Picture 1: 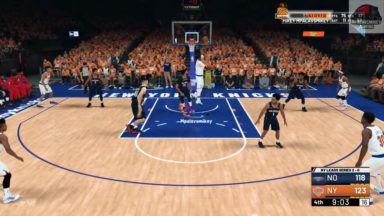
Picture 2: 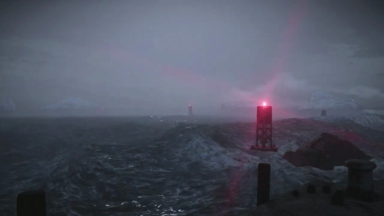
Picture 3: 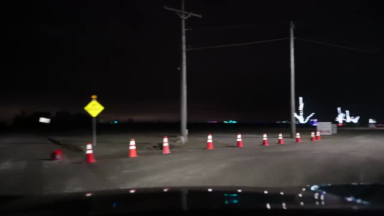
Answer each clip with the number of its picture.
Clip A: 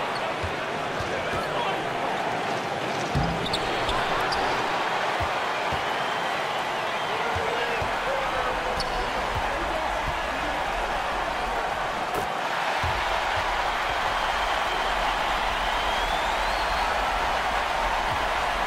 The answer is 1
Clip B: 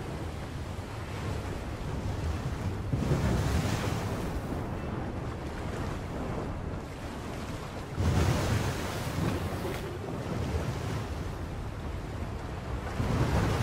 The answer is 2